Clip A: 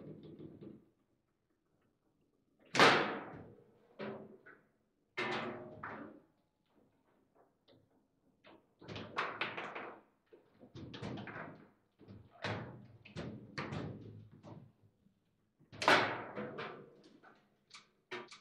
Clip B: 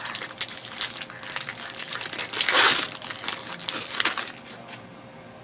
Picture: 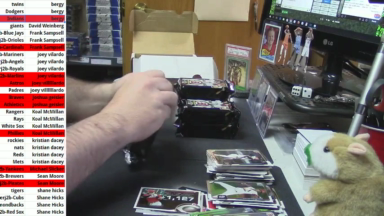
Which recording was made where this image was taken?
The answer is B